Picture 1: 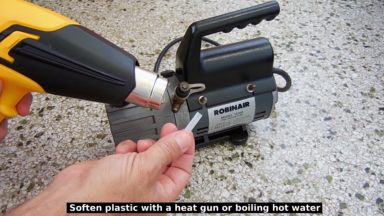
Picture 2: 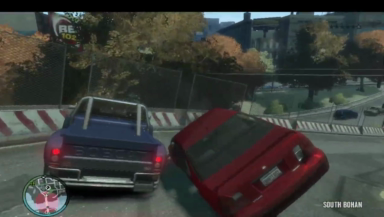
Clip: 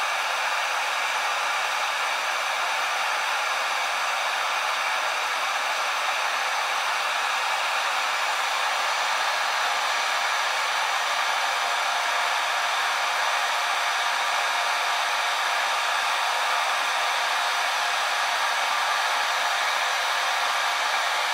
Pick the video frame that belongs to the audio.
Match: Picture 1